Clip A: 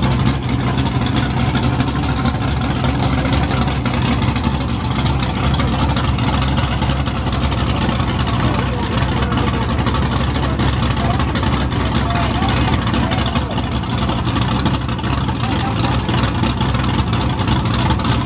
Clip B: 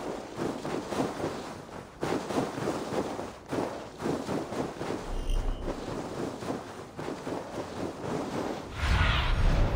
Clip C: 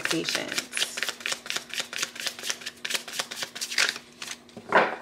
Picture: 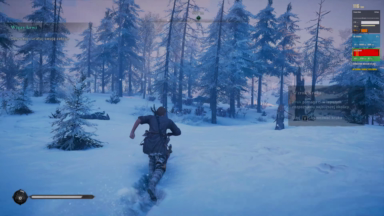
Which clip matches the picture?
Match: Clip B